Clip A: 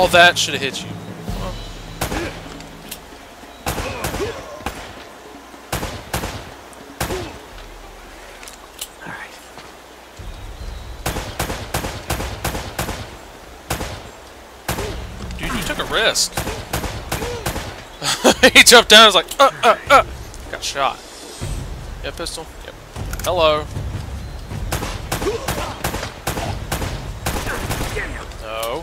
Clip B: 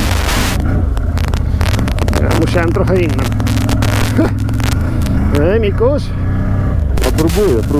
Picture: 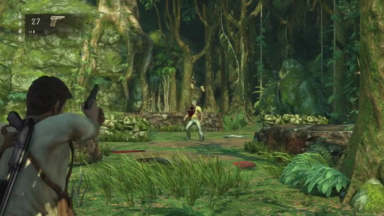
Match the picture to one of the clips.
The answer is A